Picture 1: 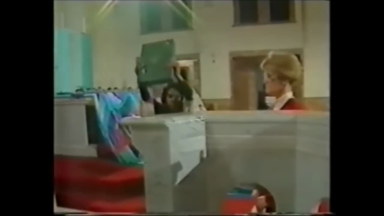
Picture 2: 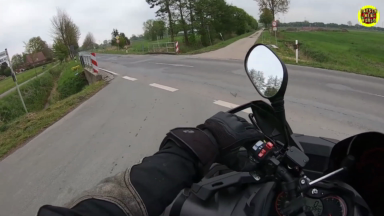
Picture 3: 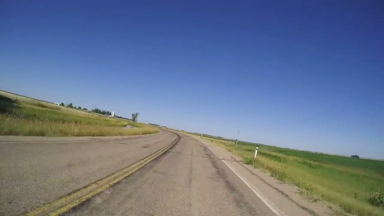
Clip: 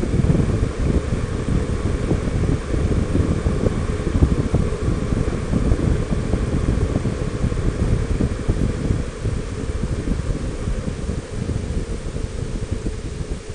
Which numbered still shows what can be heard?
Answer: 3